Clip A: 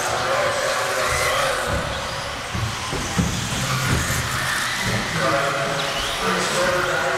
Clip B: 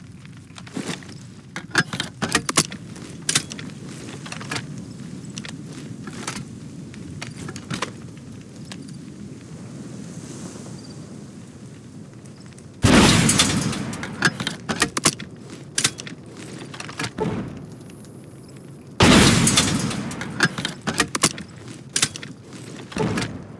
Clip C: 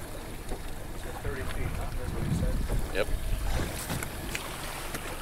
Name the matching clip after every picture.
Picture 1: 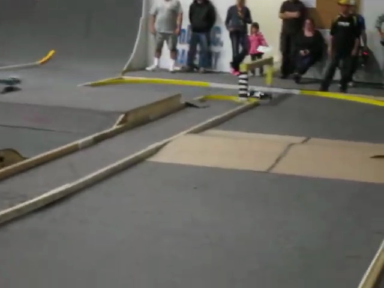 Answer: A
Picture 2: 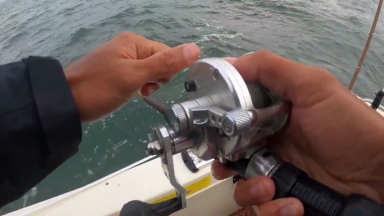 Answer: C